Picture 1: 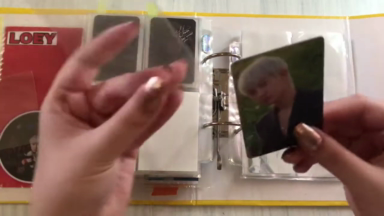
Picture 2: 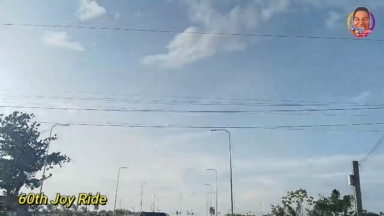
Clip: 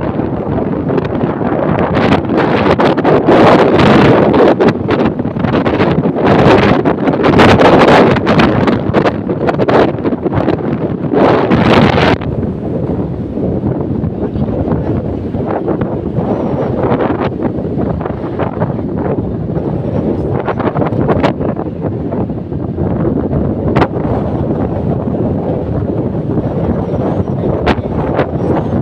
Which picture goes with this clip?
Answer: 2